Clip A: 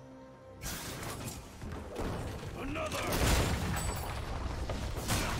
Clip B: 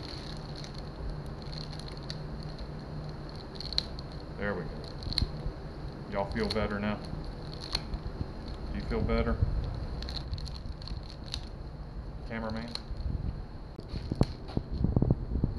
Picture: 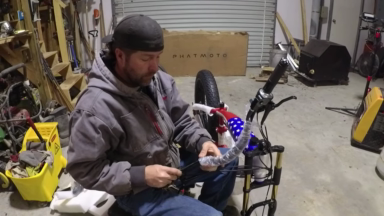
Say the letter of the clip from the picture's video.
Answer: B